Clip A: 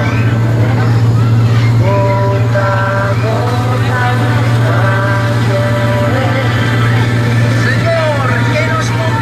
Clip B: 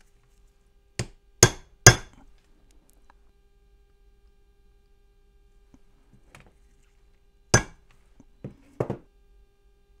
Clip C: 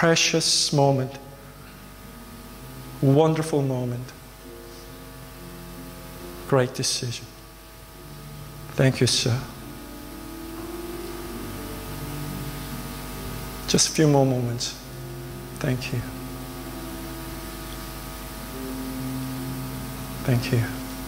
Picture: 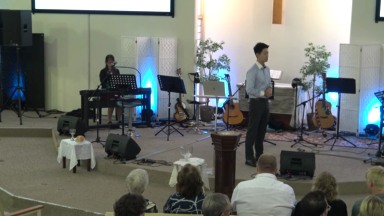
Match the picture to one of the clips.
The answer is C